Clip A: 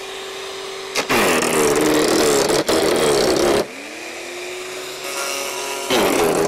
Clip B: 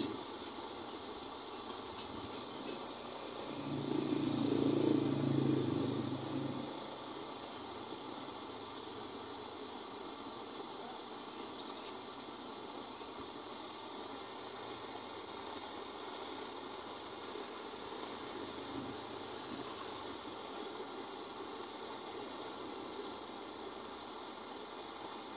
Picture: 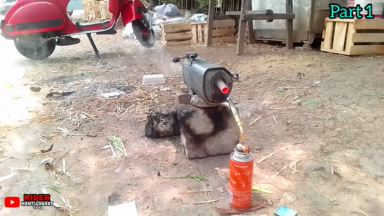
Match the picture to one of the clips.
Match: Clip B